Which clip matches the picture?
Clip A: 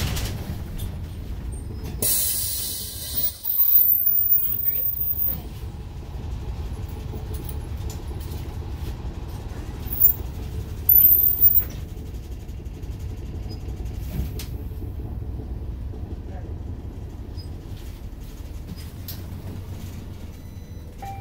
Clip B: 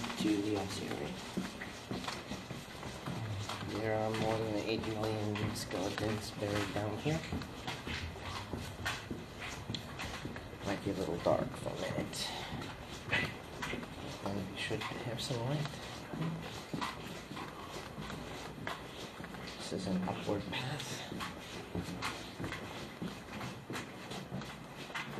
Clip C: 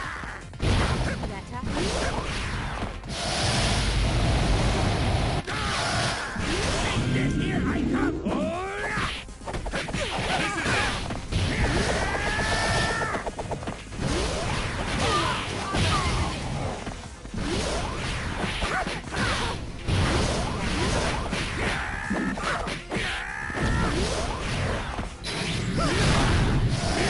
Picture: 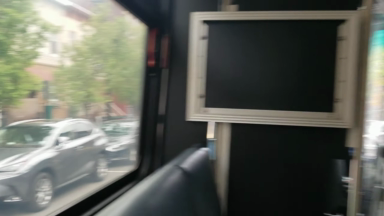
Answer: A